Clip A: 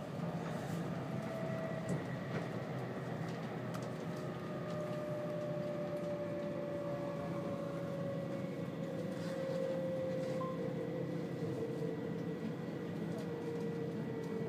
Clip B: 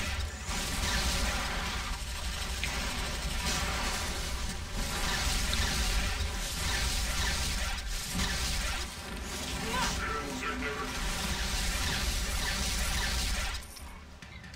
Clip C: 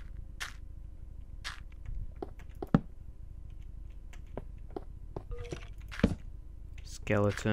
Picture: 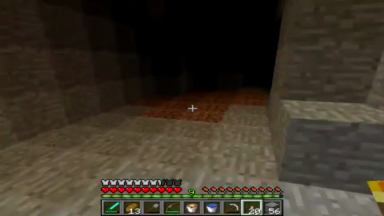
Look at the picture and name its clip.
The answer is C